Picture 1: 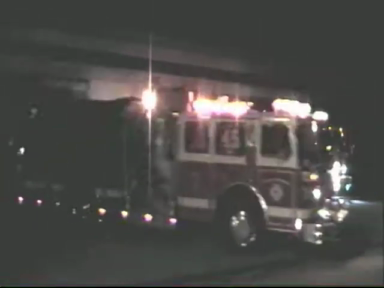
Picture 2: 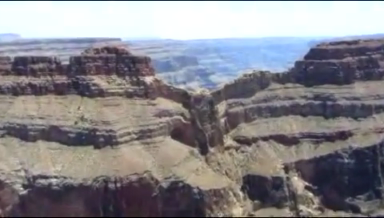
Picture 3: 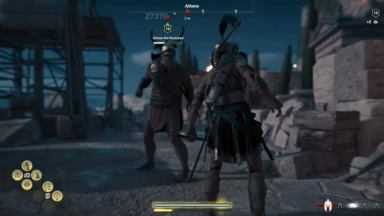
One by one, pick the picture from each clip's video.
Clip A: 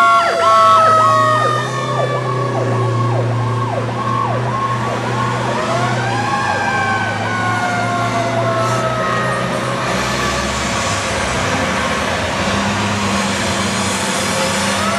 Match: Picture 1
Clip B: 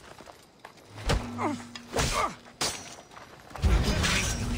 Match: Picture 3